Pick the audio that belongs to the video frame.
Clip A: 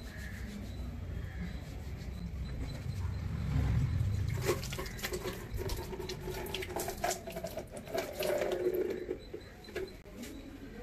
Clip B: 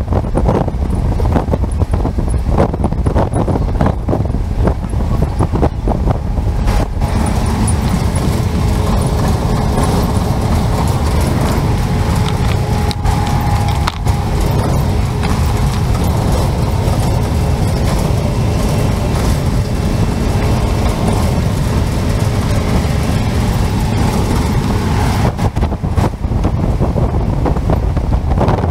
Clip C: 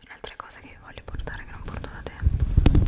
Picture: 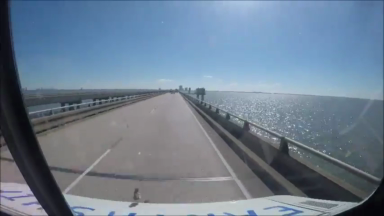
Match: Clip B